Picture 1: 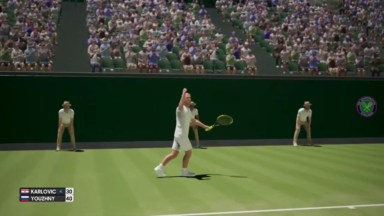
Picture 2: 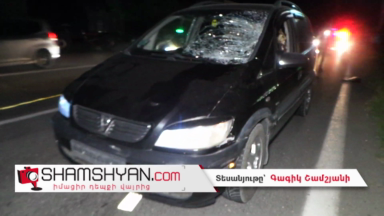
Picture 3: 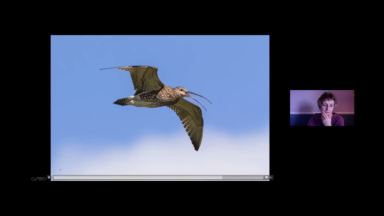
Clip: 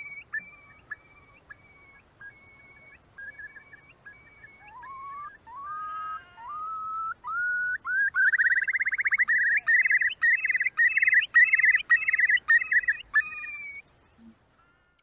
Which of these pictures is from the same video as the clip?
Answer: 3